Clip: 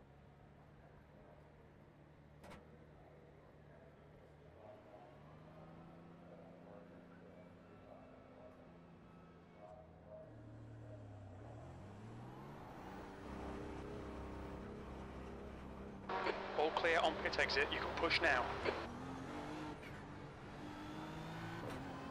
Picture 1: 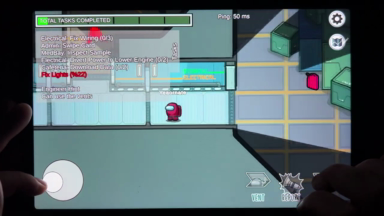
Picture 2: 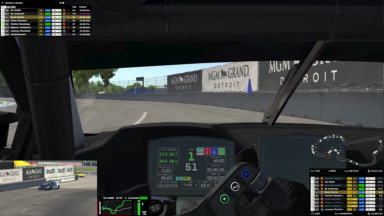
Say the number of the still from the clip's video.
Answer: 2